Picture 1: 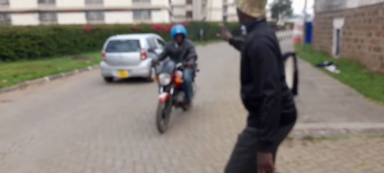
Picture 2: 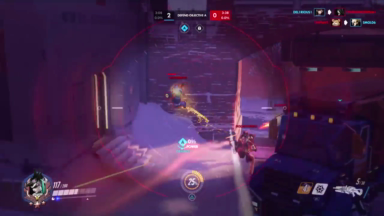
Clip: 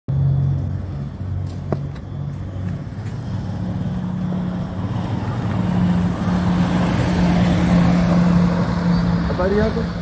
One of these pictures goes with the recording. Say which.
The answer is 1